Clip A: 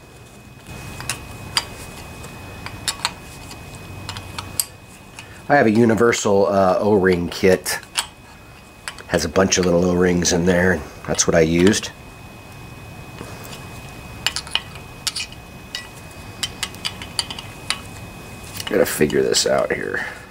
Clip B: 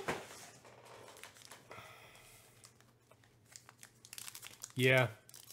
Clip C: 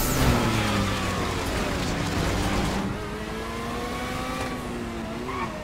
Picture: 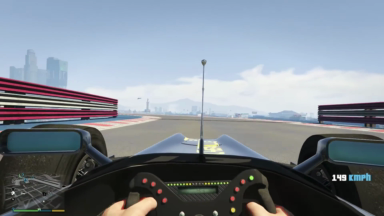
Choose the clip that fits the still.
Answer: C